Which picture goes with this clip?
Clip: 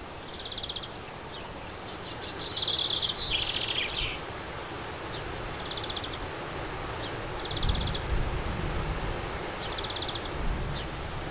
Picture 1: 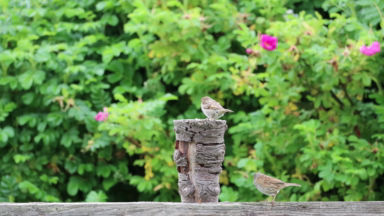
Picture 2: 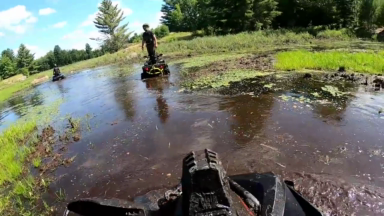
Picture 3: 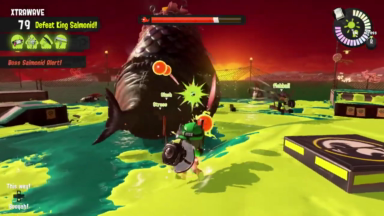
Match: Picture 1